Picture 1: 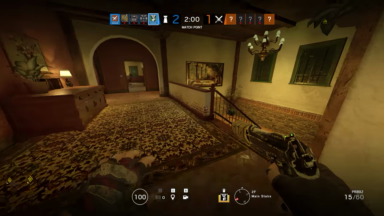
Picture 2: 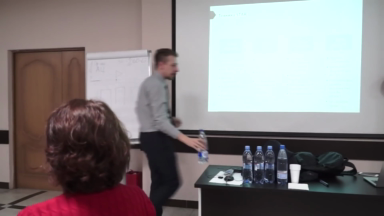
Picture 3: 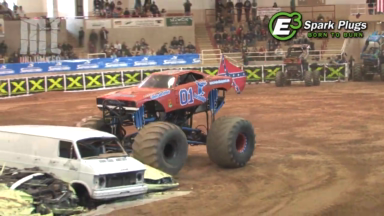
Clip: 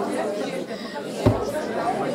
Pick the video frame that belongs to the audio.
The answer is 2